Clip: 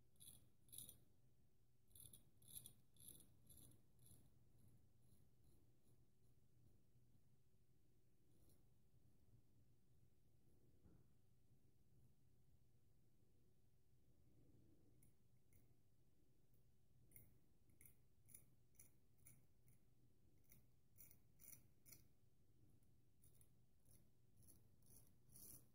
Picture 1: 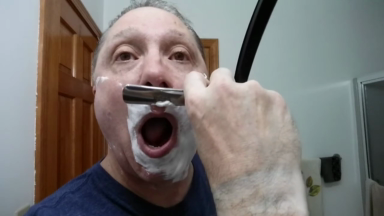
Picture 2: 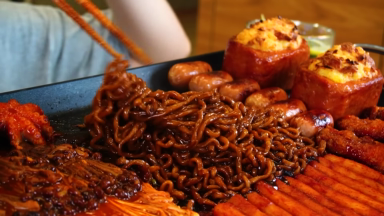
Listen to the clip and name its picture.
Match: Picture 1